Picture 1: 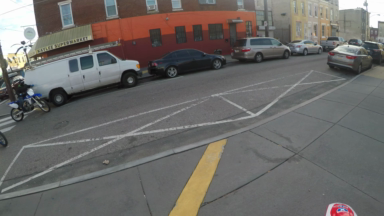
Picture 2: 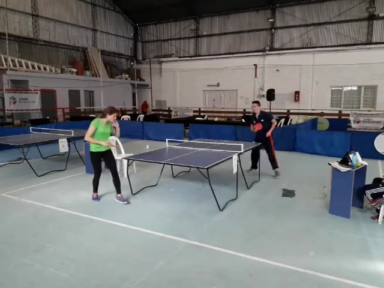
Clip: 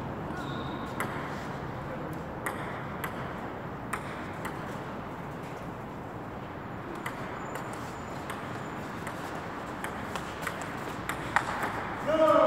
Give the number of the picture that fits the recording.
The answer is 2